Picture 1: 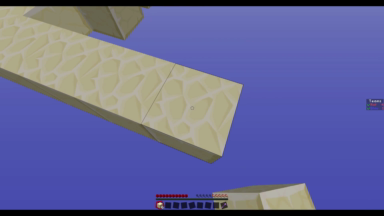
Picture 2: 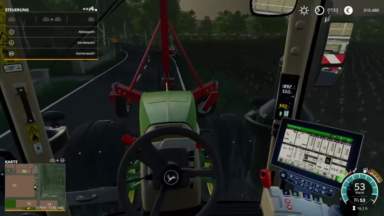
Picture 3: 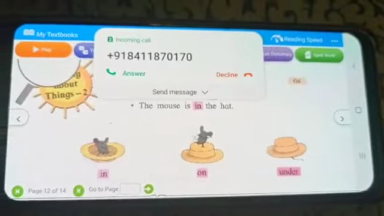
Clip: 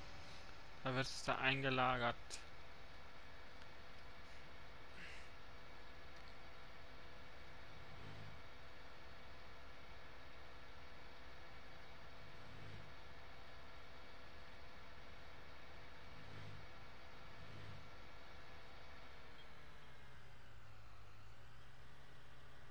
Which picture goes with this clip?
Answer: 2